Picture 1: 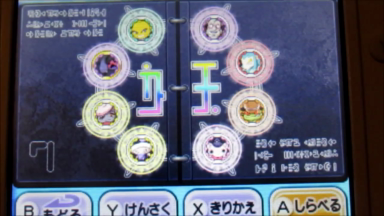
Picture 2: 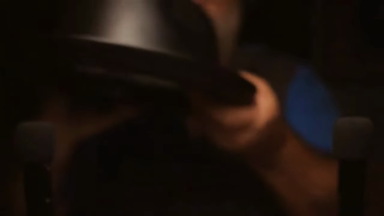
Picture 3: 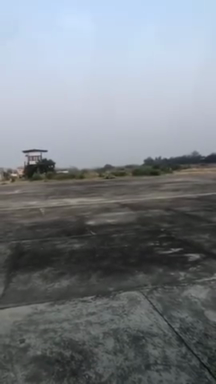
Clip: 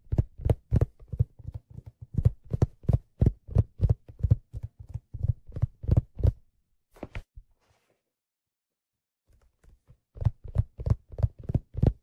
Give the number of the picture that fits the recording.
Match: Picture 2